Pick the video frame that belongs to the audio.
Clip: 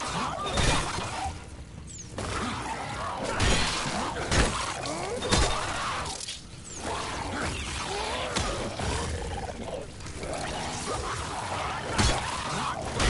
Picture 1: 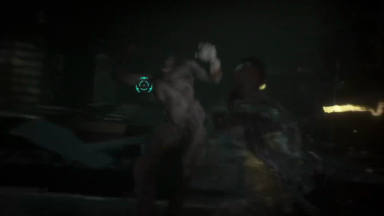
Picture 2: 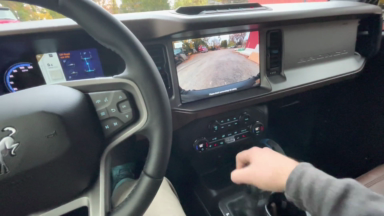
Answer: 1